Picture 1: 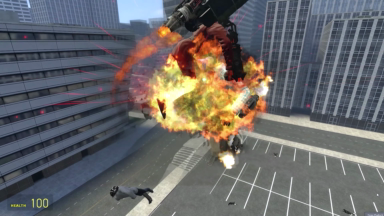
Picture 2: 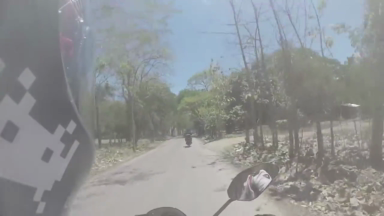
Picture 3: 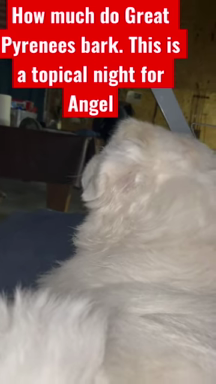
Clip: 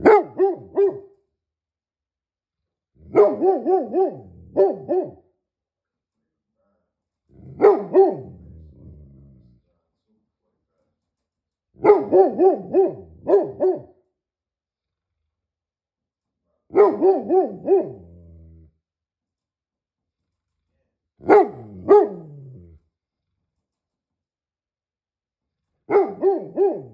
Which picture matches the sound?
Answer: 3